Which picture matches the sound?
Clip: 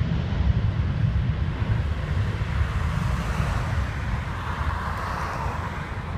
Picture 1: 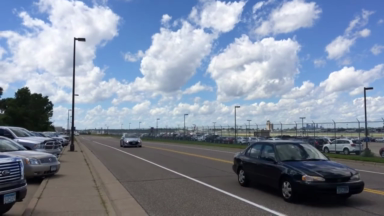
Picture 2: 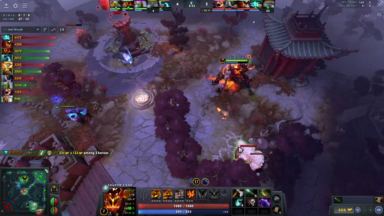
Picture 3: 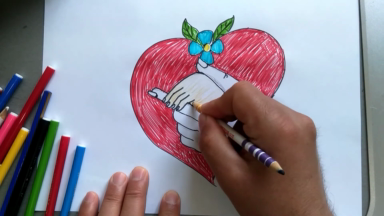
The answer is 1